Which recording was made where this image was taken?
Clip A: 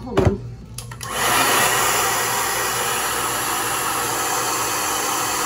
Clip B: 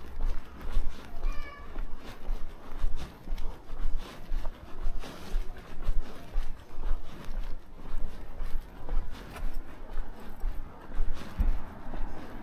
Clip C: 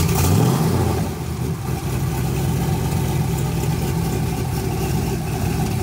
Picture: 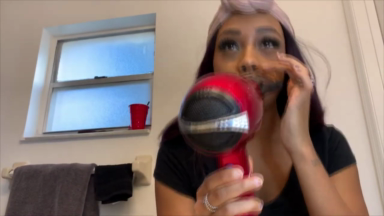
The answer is A